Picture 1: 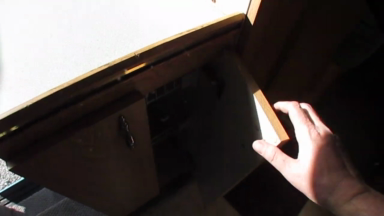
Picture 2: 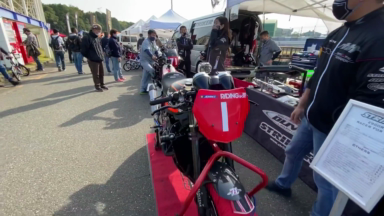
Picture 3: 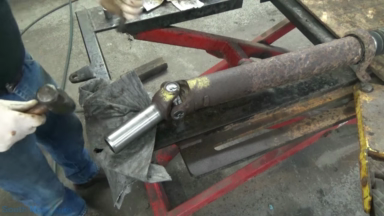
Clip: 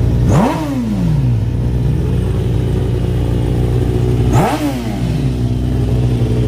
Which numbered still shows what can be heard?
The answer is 2